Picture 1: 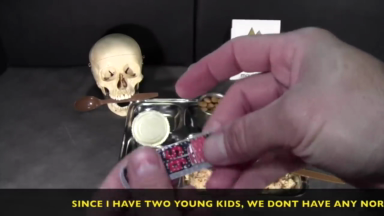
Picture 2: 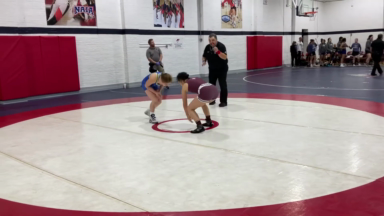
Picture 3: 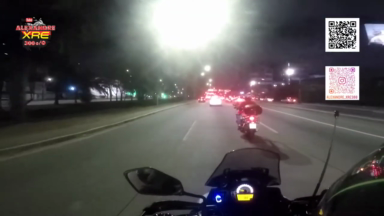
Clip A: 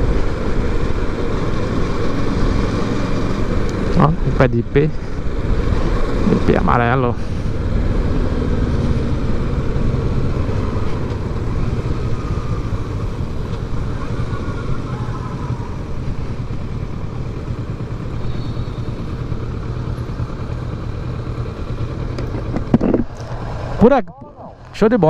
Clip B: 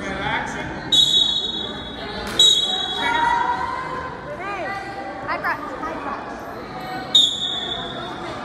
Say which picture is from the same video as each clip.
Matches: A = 3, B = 2